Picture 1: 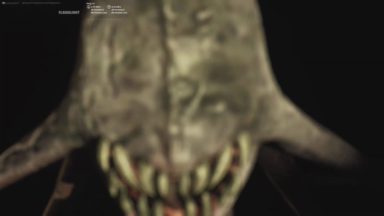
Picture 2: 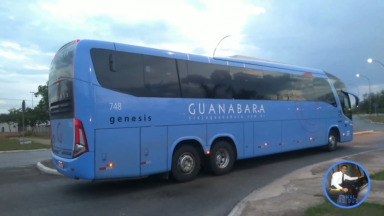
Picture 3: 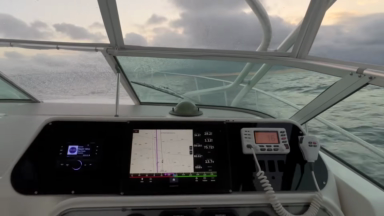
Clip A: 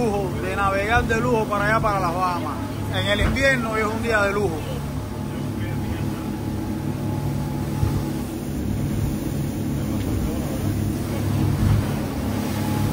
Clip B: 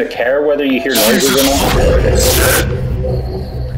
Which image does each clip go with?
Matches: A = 3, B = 1